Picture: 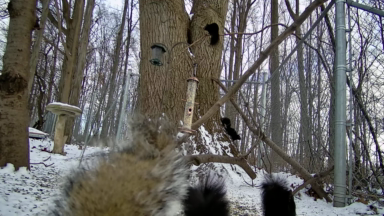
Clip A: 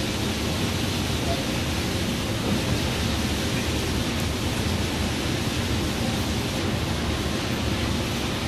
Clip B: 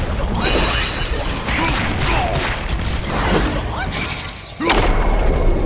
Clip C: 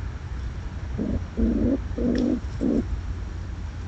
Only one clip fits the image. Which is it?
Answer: C